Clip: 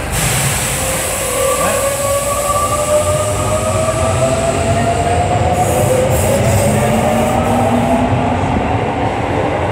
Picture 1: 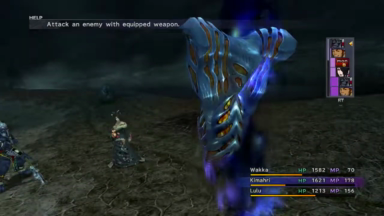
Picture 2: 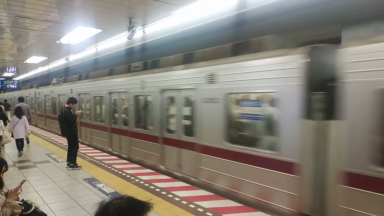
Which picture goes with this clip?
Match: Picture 2